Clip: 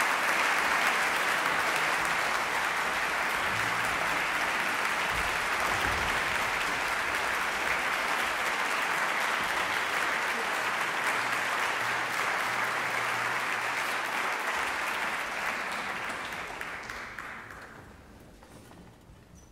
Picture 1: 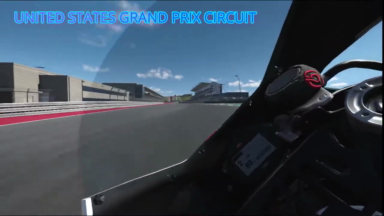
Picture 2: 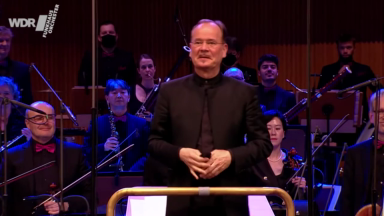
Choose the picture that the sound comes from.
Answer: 2